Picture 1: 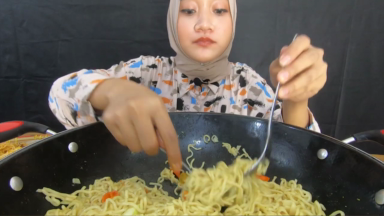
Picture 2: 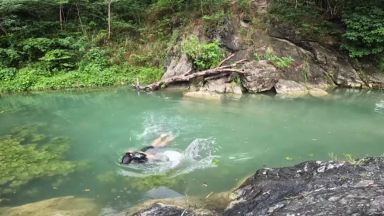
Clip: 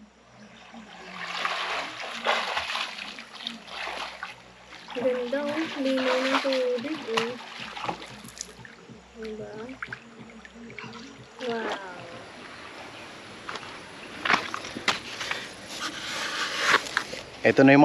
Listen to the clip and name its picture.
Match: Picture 2